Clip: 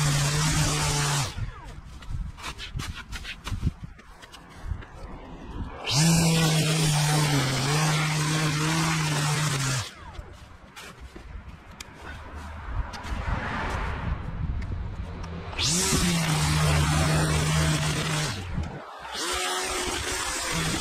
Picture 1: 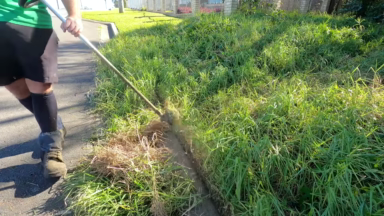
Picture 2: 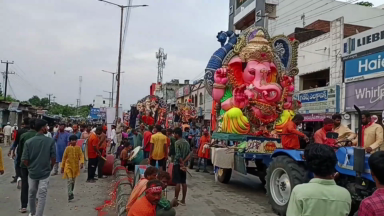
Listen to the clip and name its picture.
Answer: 1